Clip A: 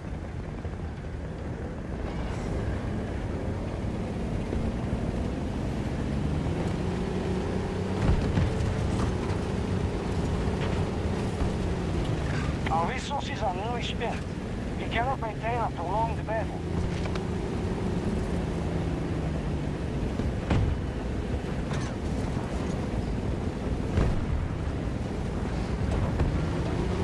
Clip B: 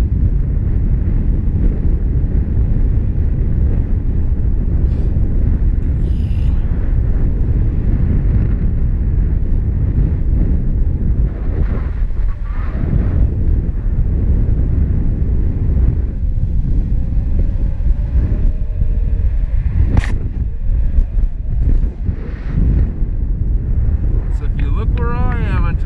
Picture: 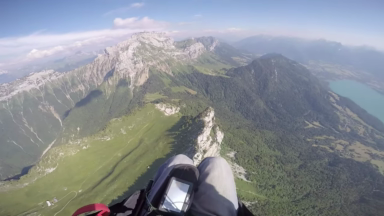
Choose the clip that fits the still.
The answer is B